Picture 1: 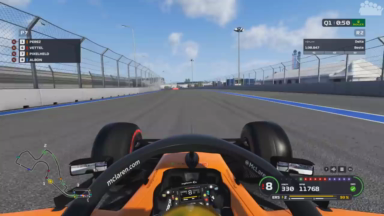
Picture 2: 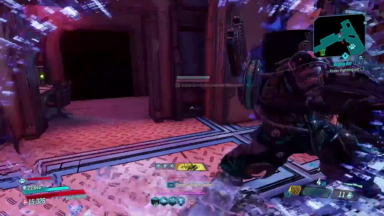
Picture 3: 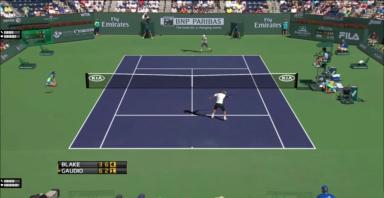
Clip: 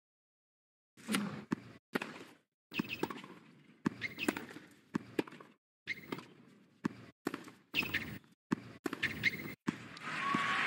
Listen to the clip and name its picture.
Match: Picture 3